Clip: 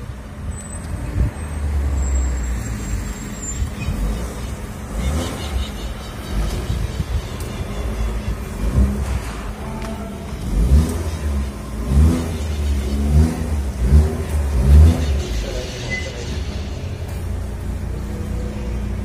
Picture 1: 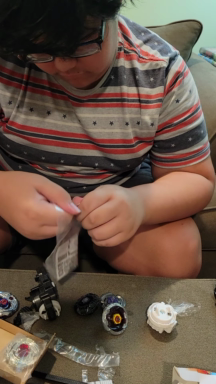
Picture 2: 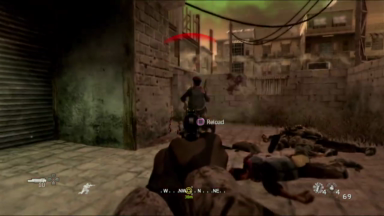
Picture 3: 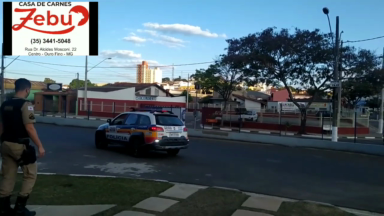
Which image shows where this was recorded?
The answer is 3